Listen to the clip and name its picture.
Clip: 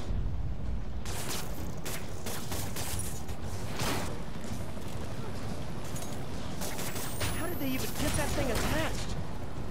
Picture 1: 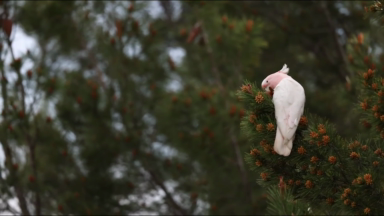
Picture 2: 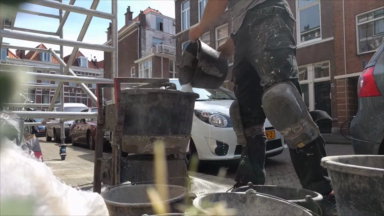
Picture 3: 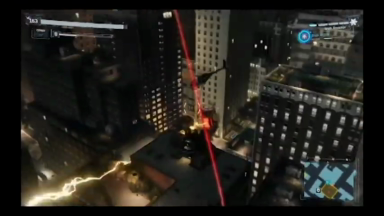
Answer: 3